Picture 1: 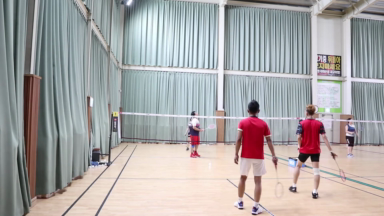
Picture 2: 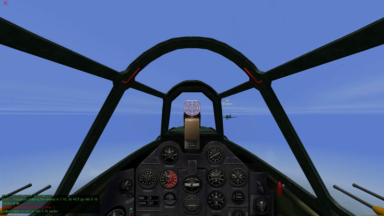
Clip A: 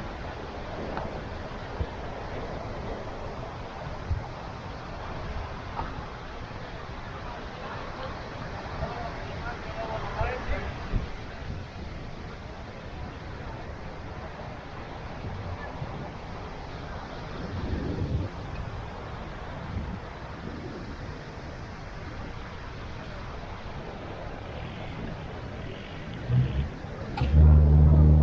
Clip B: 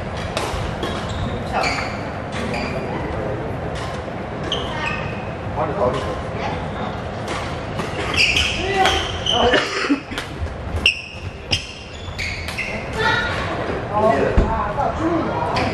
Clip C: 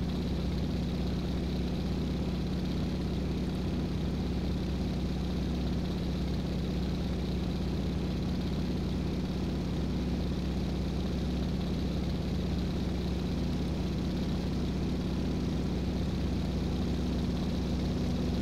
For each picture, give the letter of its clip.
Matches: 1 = B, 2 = C